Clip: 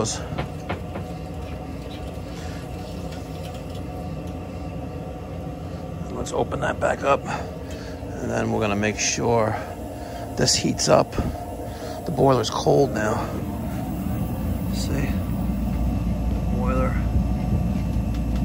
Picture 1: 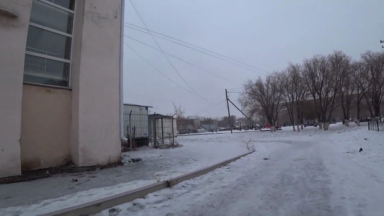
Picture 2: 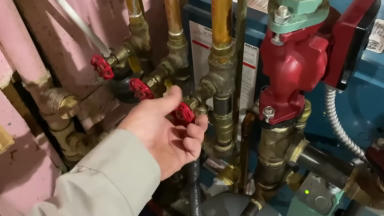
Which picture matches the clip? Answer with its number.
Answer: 2